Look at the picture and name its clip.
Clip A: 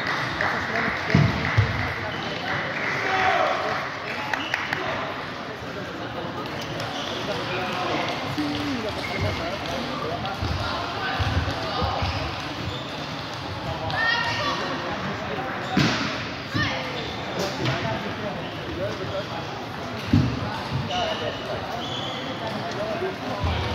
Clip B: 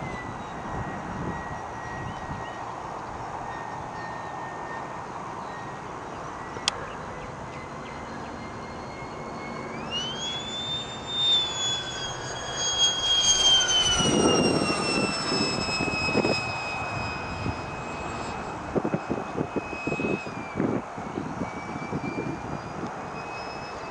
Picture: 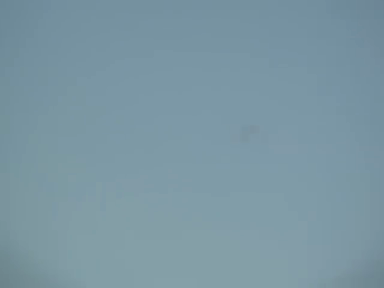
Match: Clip B